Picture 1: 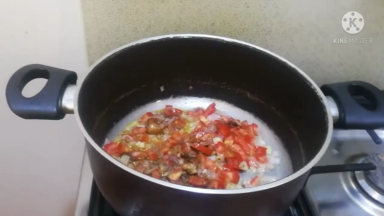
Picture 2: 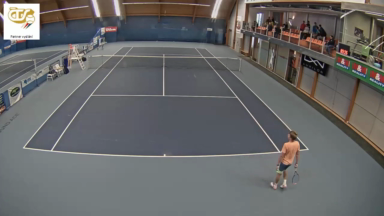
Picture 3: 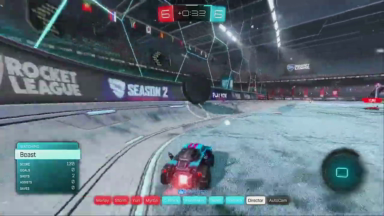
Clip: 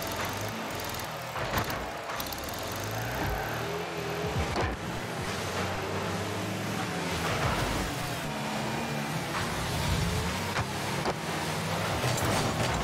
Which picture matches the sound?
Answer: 3